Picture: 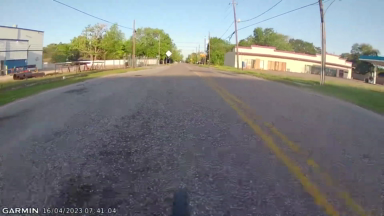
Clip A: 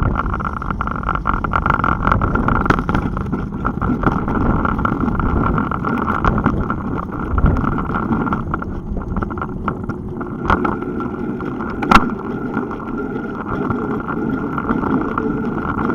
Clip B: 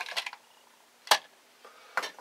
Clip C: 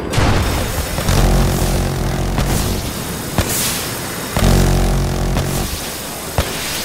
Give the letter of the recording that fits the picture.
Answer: A